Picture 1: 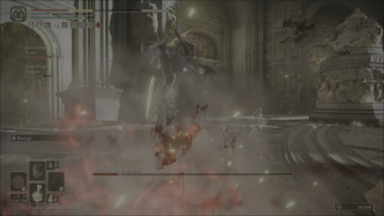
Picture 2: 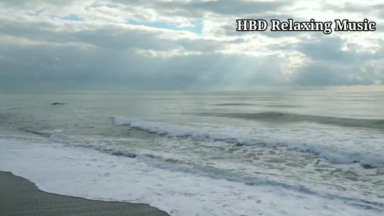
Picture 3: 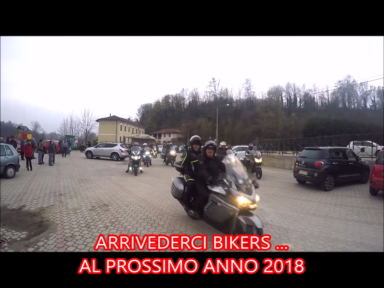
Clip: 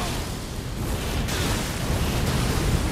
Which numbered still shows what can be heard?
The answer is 1